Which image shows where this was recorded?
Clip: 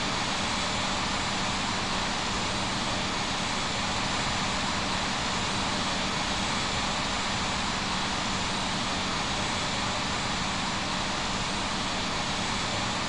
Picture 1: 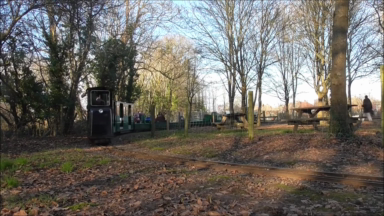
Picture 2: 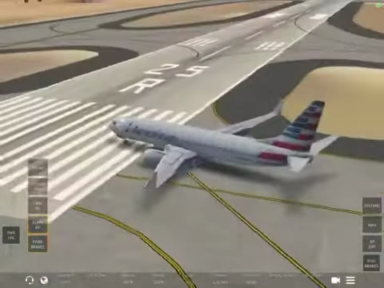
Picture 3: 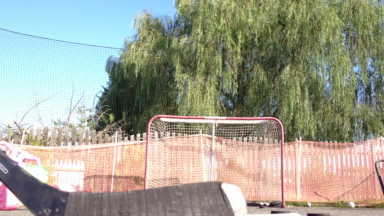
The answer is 2